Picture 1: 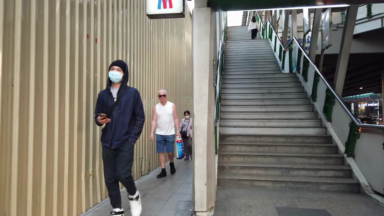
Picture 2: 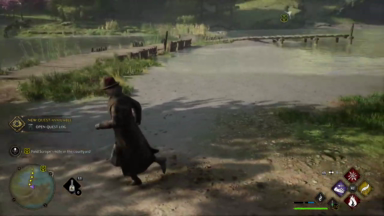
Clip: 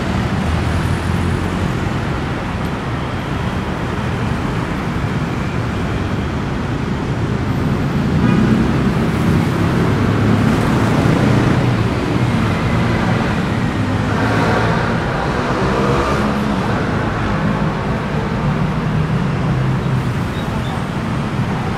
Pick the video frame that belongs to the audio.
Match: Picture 1